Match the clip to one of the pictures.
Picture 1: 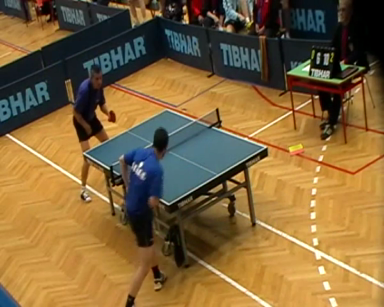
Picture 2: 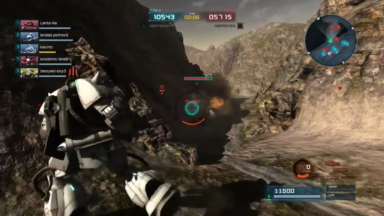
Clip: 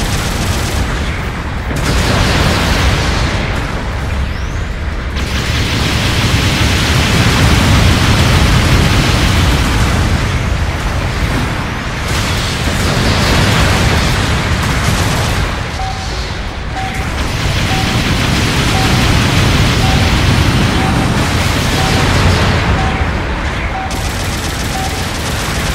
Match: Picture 2